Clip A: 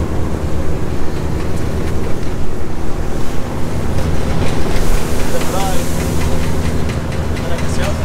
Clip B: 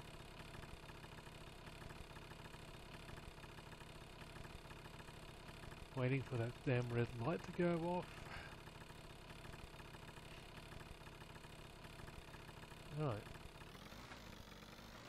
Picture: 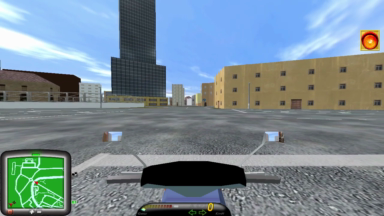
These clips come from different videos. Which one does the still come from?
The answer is B